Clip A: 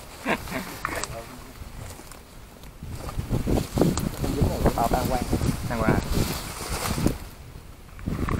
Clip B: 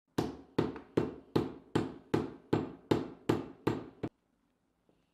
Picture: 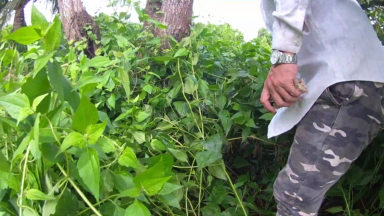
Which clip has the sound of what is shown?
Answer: A